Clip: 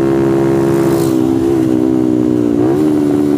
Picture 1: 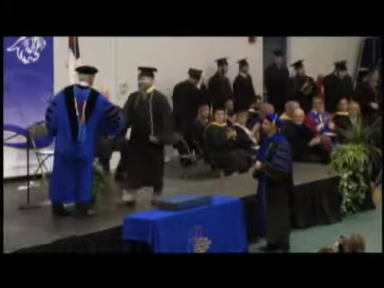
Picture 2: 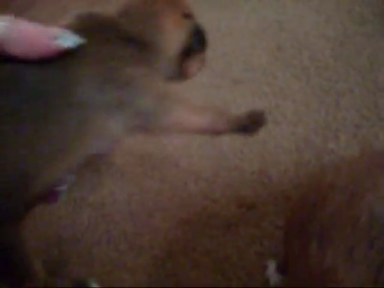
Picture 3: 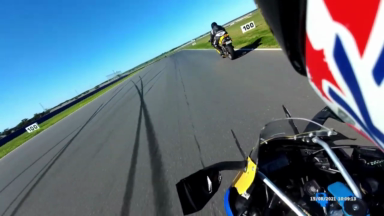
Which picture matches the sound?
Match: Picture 3